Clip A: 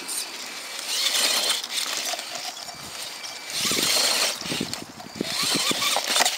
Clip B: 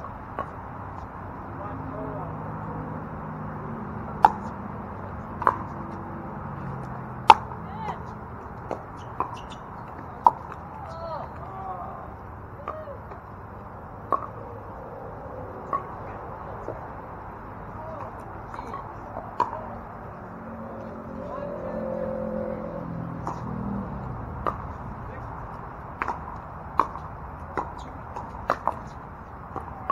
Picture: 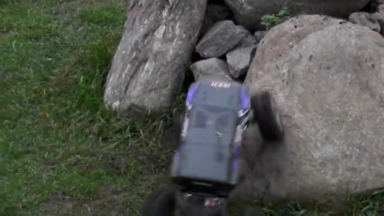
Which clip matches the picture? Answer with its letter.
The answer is A